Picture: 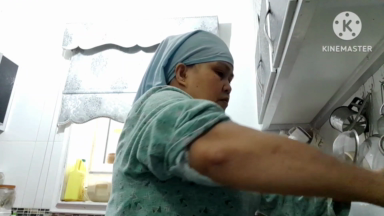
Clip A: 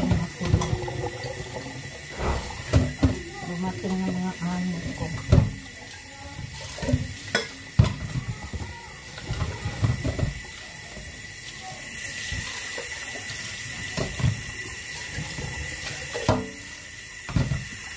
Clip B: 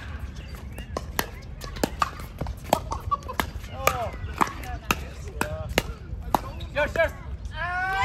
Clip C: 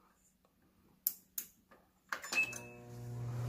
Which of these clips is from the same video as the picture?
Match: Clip A